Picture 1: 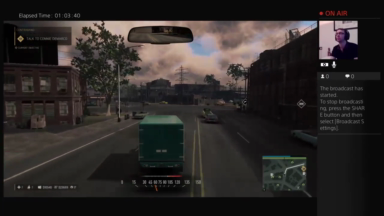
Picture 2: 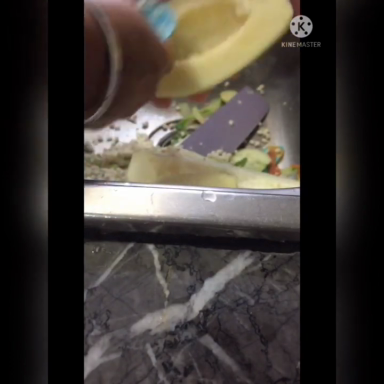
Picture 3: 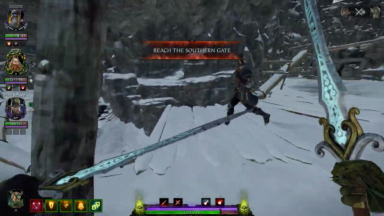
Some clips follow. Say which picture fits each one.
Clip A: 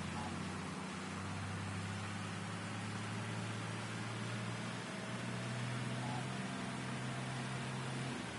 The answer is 1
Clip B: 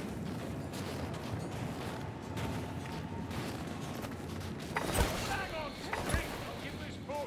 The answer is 3